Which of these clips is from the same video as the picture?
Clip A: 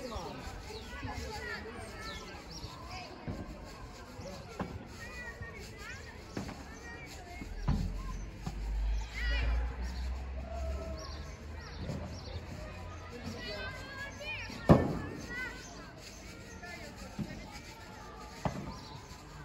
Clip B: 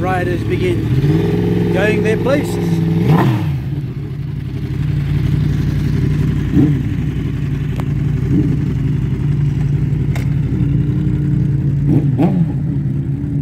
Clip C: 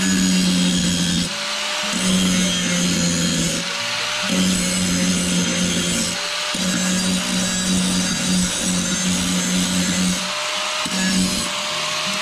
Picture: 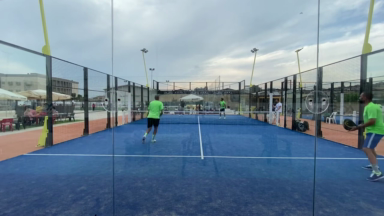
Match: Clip A